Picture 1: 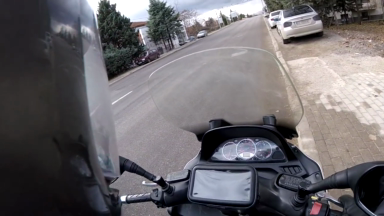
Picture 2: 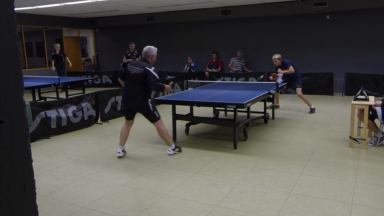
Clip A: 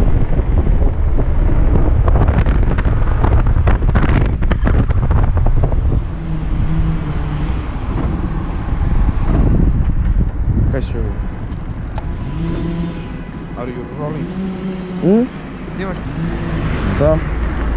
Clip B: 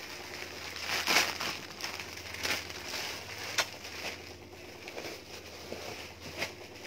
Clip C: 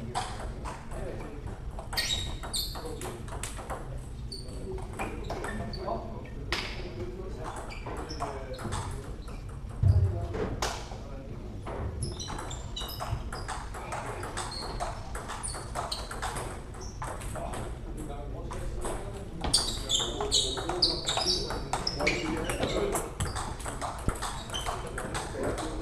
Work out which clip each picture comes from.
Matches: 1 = A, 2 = C